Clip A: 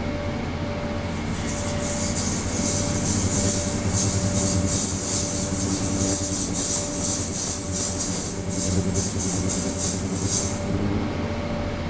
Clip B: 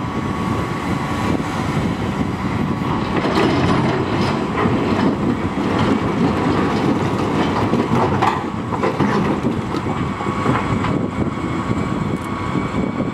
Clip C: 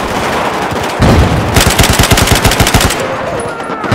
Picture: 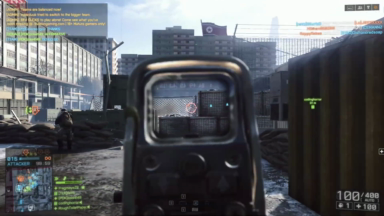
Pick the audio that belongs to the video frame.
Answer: C